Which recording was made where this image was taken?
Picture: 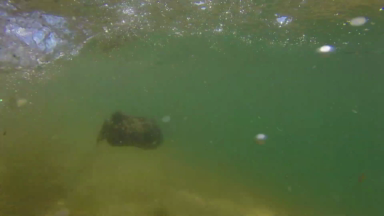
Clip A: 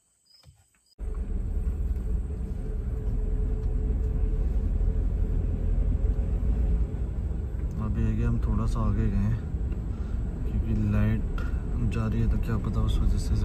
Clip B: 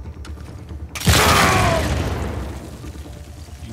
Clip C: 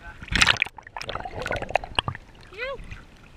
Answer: C